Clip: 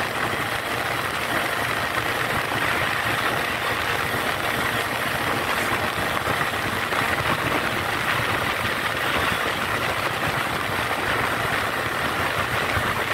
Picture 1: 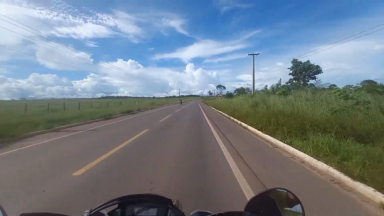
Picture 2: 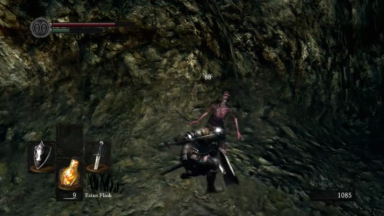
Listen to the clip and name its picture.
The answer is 1